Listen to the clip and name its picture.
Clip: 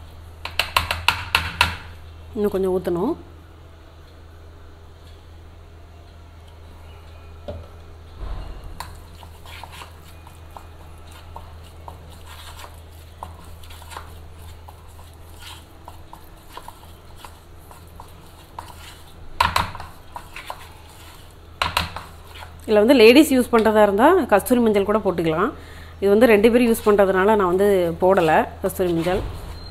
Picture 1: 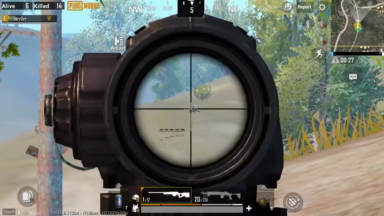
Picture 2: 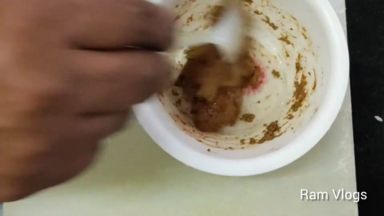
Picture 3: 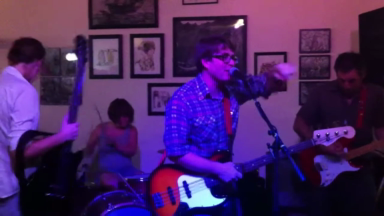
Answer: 2